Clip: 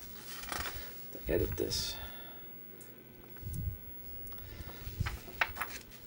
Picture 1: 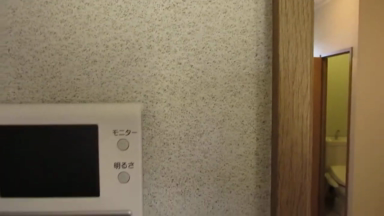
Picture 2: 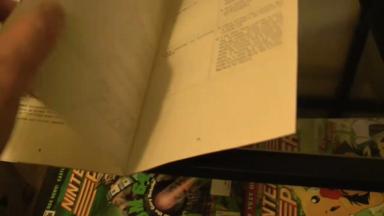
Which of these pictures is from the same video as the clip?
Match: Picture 2